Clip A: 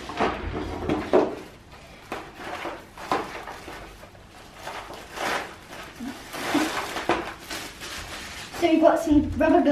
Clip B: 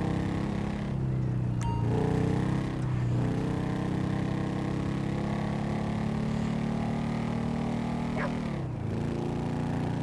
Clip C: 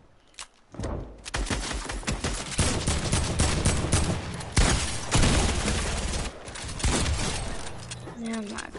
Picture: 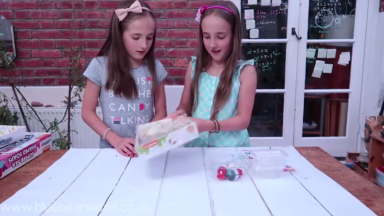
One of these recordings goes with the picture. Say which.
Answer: A